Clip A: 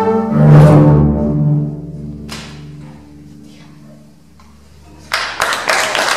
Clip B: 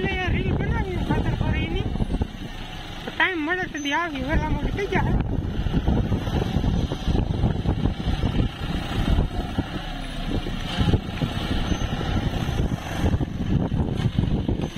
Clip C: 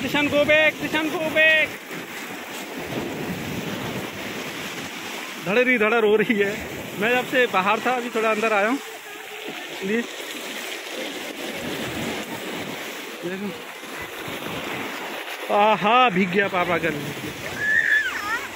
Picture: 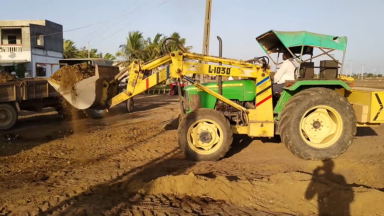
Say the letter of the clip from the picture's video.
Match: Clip B